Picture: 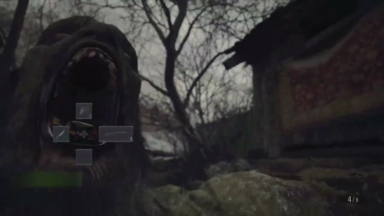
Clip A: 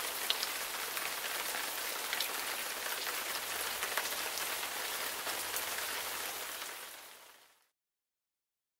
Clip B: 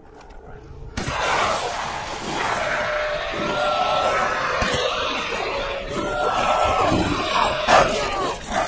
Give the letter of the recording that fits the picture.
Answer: B